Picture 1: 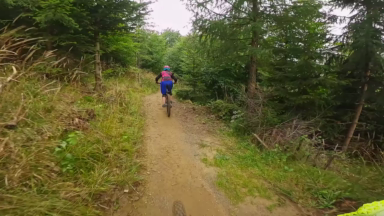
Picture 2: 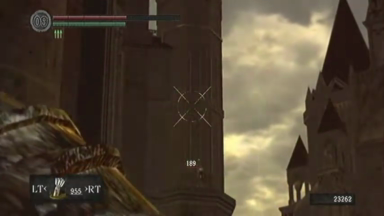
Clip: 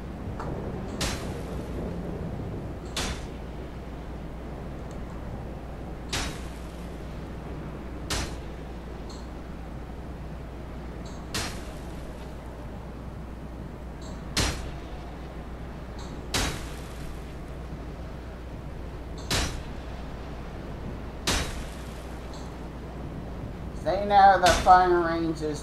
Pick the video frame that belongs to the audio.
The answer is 2